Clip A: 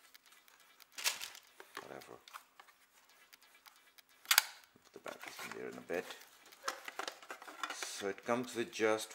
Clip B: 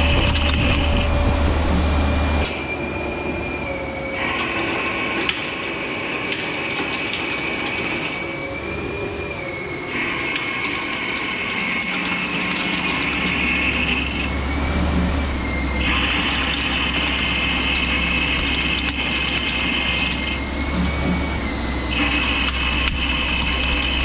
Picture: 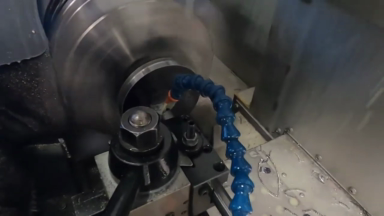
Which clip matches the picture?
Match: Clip B